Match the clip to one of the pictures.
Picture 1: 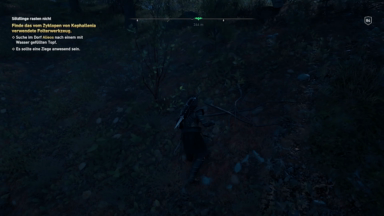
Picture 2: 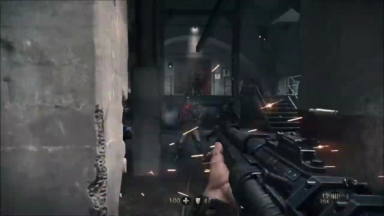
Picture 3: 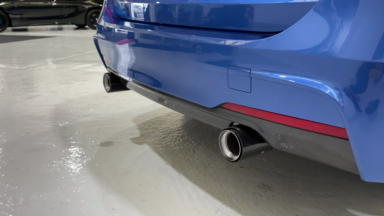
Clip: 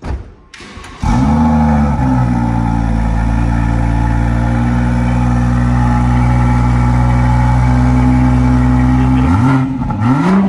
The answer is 3